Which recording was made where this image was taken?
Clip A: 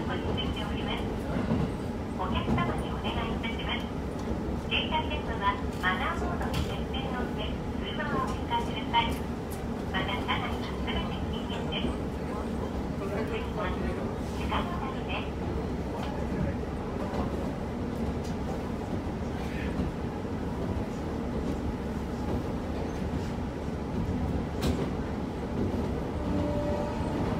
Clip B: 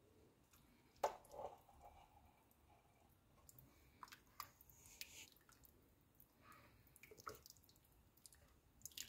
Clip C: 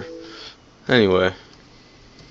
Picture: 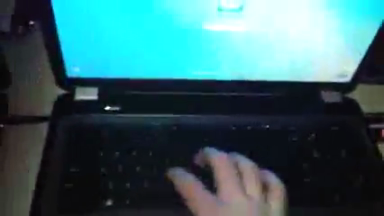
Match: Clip C